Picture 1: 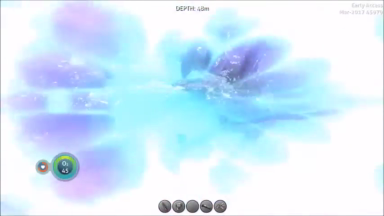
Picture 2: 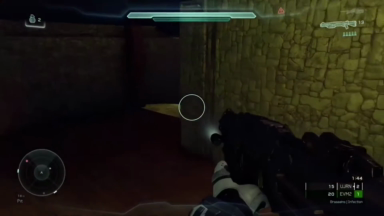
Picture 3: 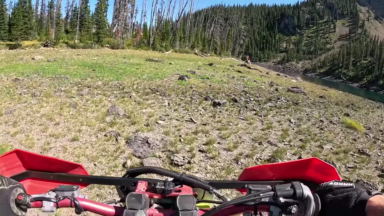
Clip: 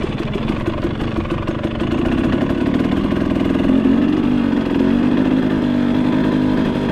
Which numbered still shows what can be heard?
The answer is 3